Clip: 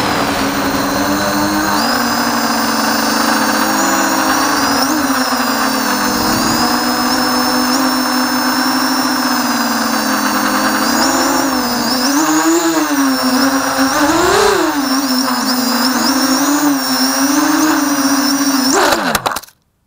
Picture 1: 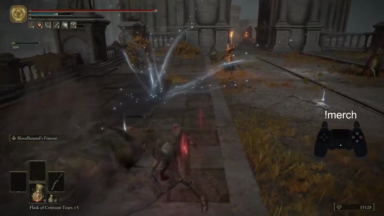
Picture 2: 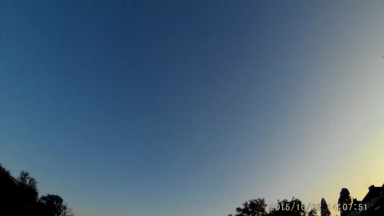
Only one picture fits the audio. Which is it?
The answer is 2